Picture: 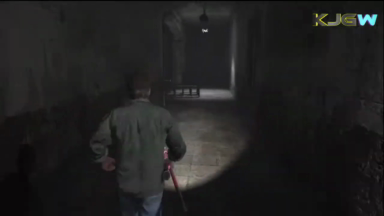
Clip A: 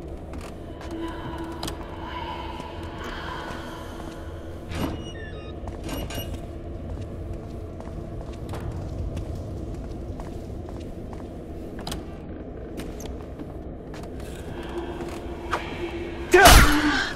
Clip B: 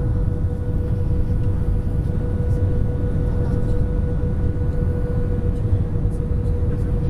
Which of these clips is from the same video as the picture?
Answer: A